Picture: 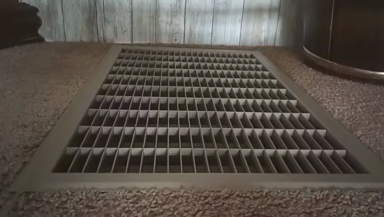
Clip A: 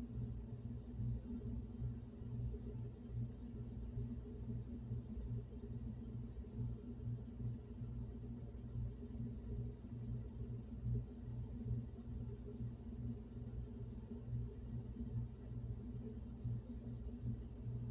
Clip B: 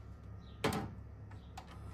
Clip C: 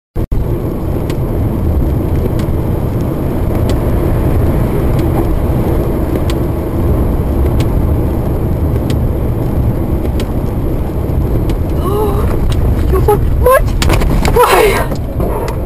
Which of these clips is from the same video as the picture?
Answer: A